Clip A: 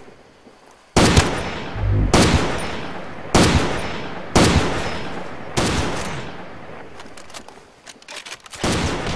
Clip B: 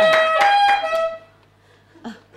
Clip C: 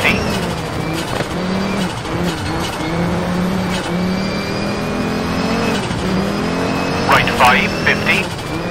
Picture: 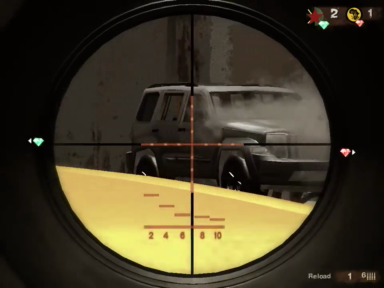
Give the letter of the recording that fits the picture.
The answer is A